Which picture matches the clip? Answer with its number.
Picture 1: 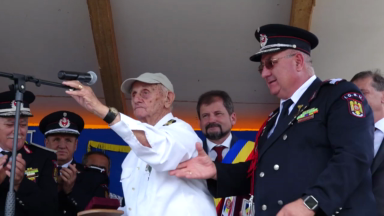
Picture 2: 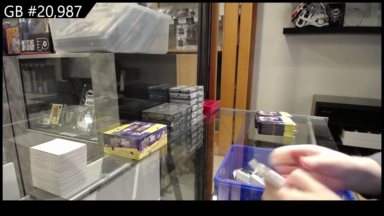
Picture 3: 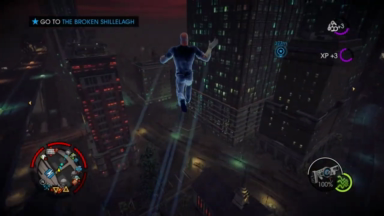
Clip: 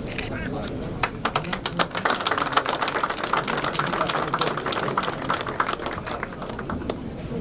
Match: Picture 1